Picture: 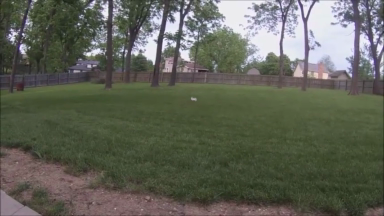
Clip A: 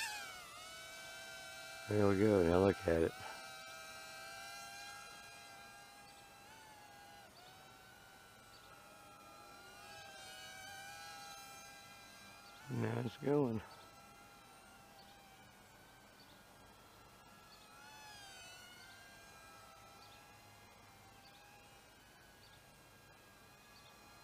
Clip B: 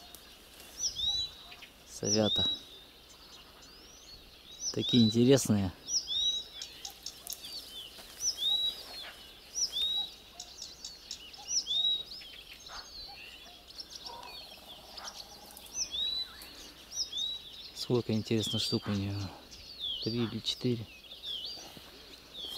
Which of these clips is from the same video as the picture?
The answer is A